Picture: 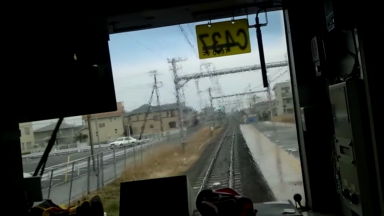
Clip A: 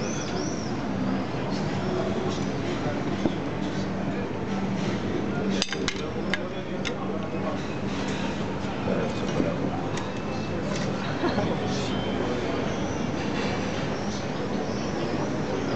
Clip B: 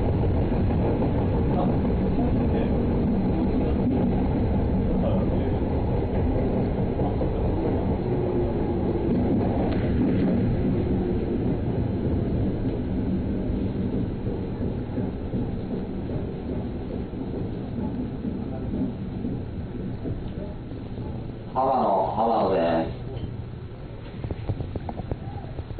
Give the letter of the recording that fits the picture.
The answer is B